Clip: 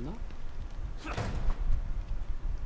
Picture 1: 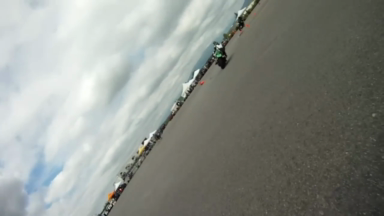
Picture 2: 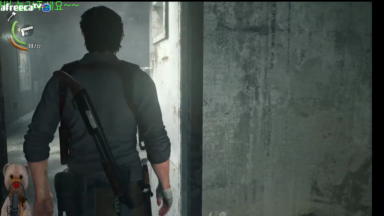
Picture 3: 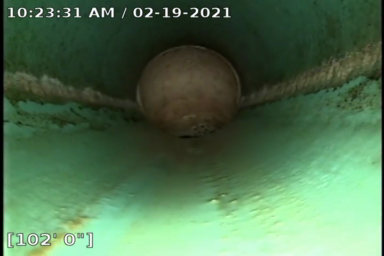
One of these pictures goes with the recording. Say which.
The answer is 2